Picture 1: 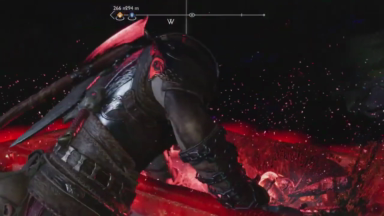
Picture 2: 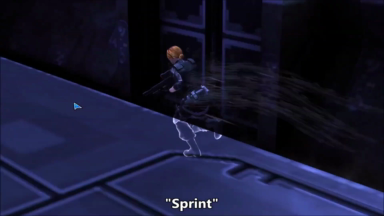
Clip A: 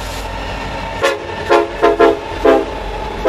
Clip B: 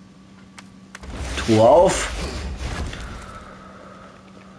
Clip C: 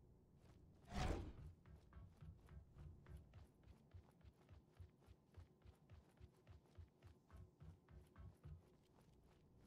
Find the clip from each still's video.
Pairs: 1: B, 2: C